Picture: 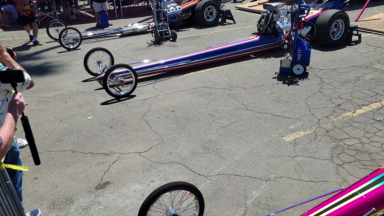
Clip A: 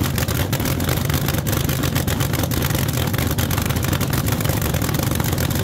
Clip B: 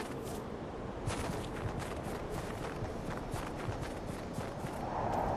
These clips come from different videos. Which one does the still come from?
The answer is A